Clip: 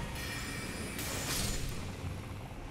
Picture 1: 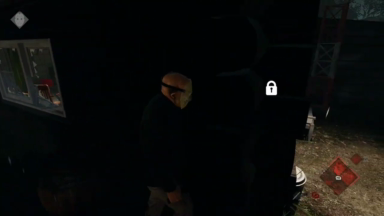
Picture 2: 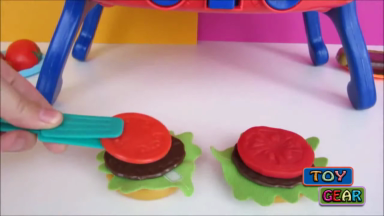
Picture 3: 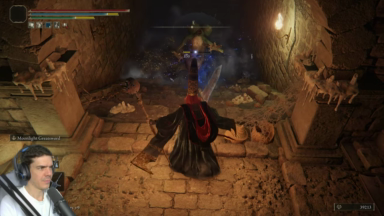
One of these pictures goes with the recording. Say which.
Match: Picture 3